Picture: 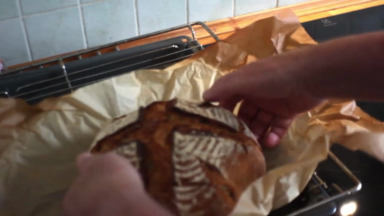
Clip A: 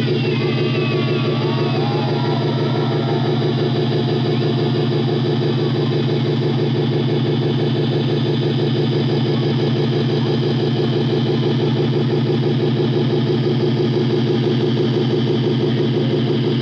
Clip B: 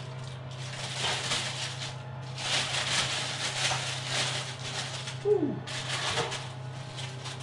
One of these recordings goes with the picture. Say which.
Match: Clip B